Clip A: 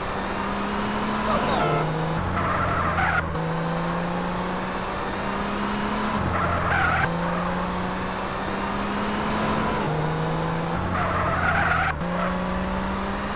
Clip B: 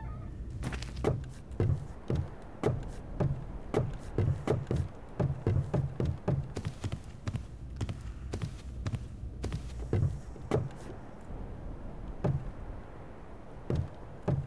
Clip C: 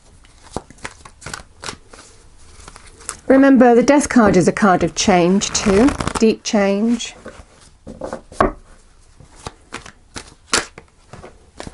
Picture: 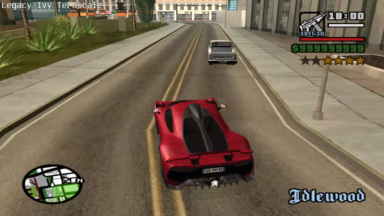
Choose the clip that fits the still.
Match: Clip A